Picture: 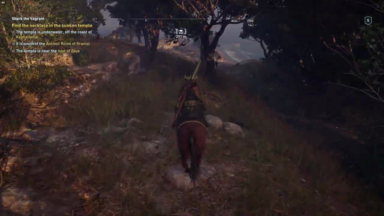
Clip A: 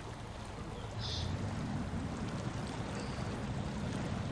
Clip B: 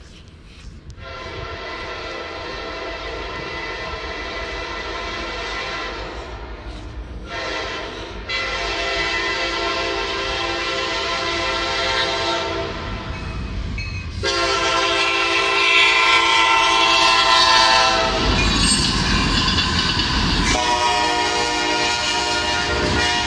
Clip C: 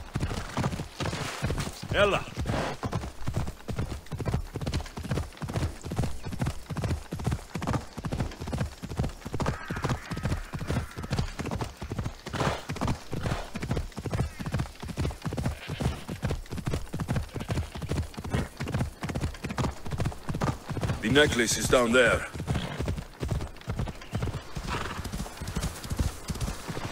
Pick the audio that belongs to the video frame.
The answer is C